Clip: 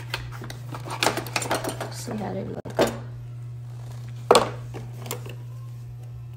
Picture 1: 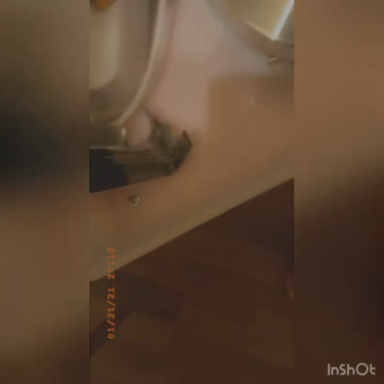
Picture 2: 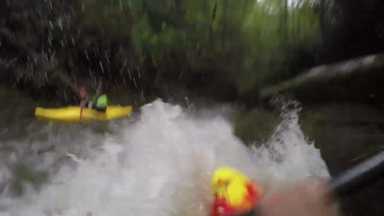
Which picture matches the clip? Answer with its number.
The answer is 1